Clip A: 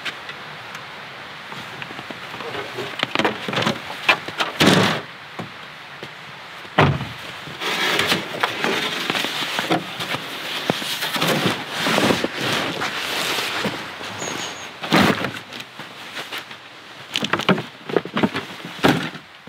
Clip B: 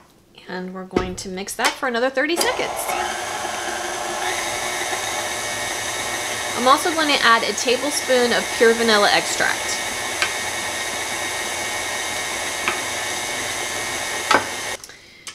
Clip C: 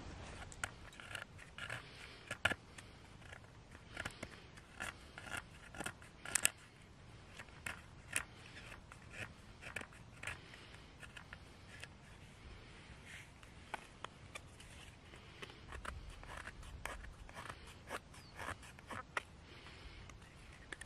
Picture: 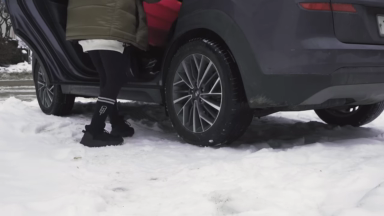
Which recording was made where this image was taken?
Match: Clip A